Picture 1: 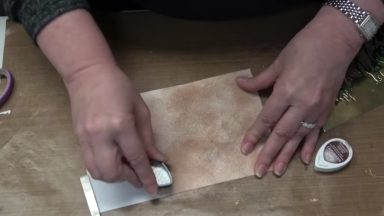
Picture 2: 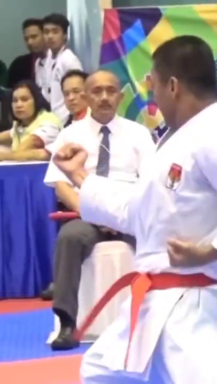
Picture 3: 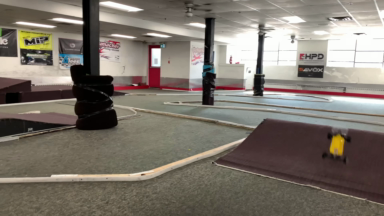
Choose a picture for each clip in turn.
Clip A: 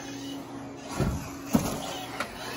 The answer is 3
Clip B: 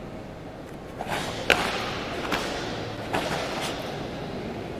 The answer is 2